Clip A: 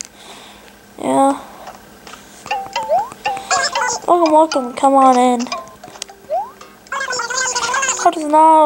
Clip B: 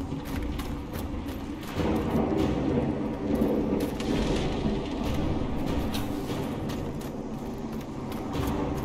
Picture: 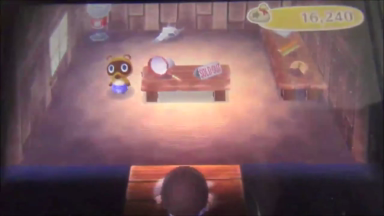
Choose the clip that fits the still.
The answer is A